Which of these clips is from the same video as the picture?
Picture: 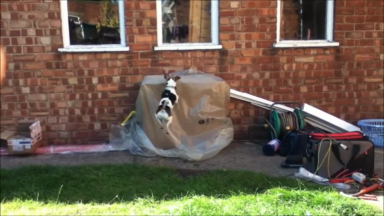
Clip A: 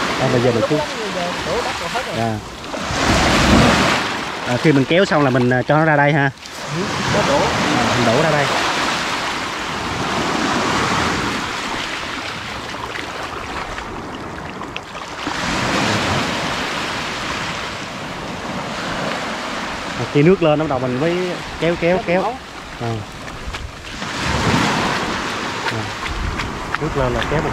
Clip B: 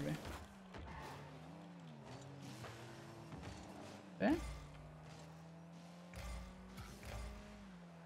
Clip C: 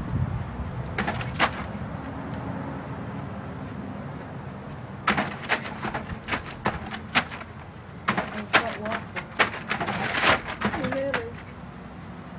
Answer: C